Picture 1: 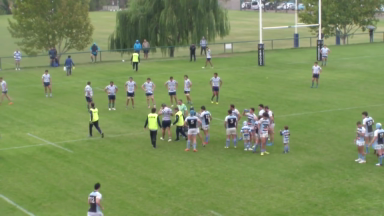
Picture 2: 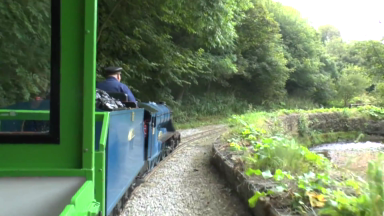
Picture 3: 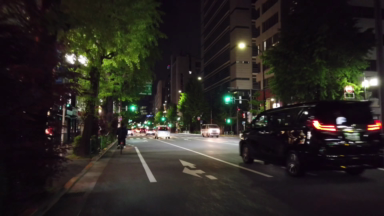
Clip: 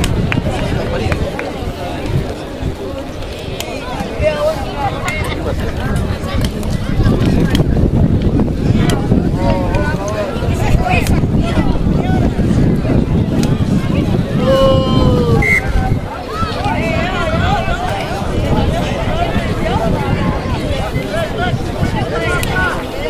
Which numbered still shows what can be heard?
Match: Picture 1